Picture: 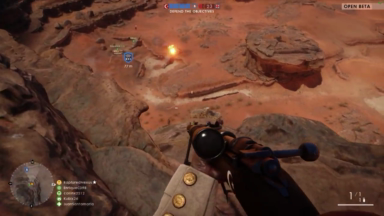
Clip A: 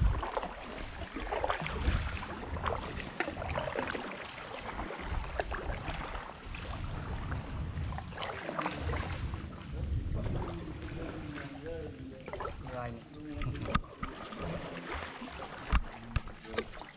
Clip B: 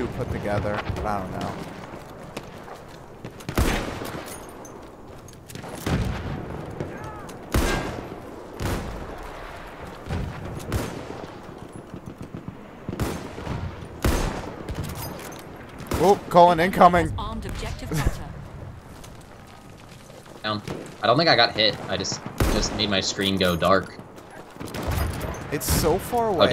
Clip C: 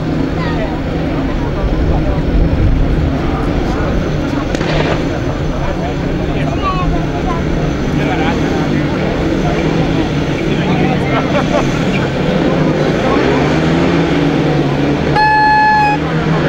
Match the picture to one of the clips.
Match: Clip B